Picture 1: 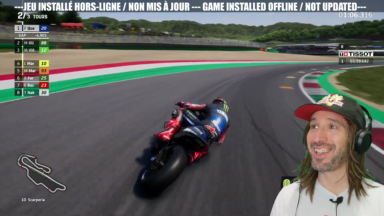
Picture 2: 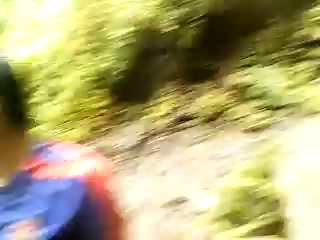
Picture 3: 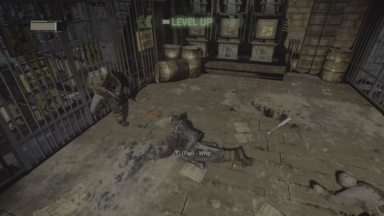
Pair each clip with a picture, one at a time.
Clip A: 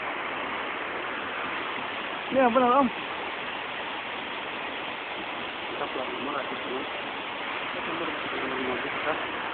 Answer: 2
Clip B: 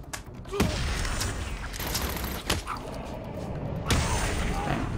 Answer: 3